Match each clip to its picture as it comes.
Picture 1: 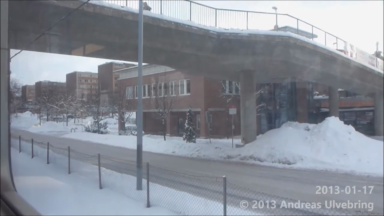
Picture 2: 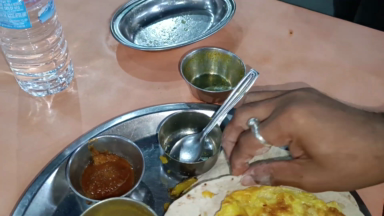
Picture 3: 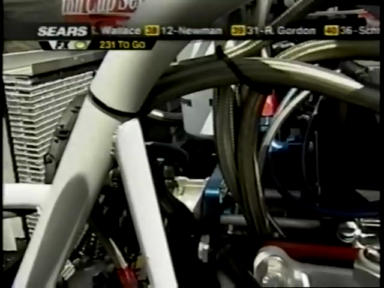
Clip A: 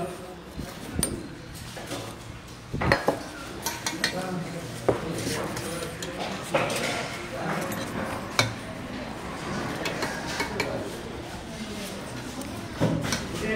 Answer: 2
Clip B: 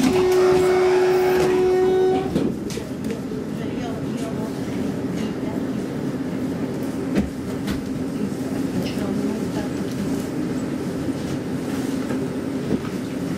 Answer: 1